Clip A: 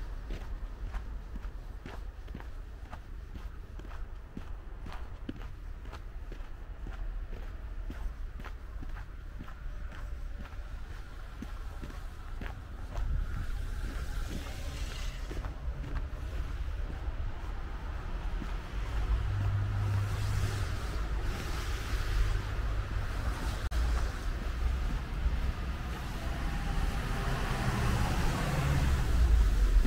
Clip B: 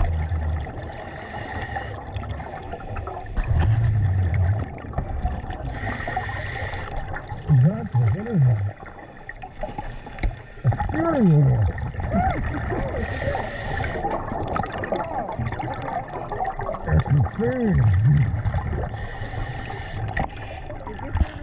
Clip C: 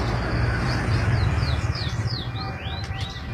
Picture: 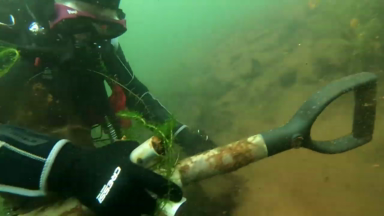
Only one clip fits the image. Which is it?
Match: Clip B